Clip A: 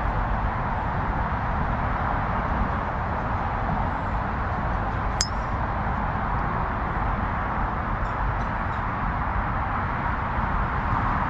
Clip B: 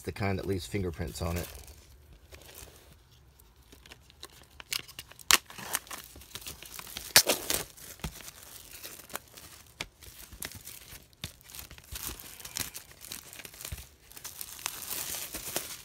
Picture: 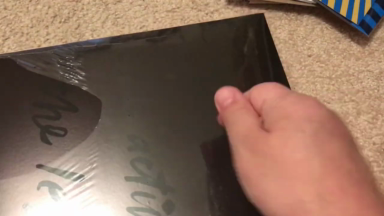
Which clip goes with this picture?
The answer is B